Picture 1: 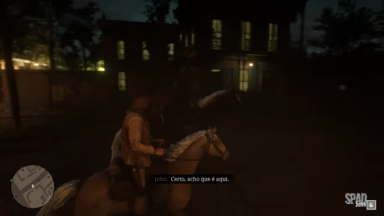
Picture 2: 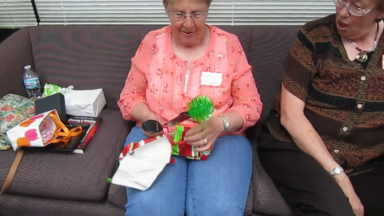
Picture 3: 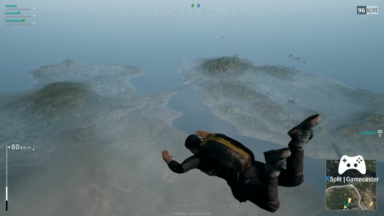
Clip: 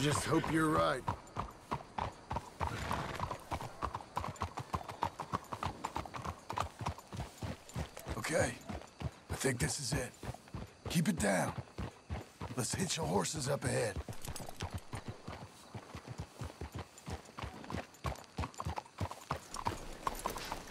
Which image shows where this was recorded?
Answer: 1